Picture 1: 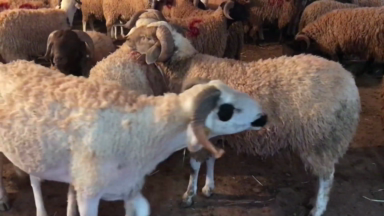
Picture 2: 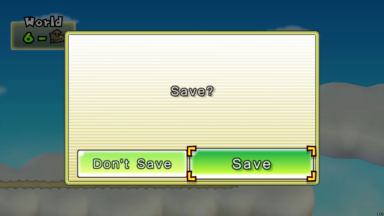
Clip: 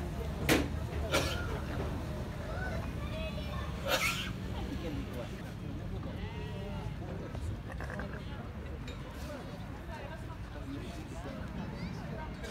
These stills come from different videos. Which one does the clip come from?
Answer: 1